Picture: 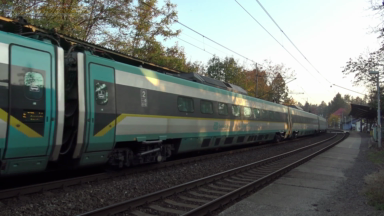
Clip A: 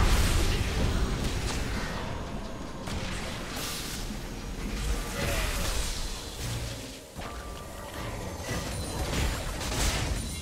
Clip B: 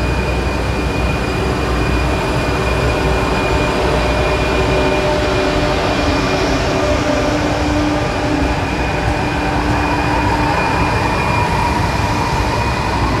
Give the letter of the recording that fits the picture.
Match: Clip B